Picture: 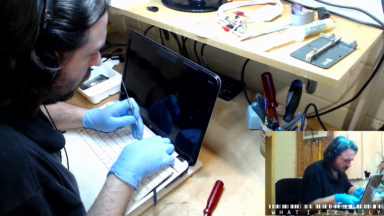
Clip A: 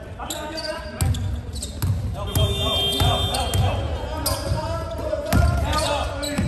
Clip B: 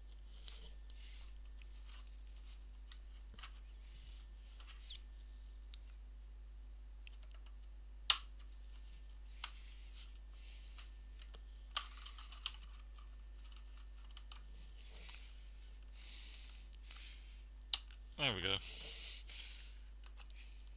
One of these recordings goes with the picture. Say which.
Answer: B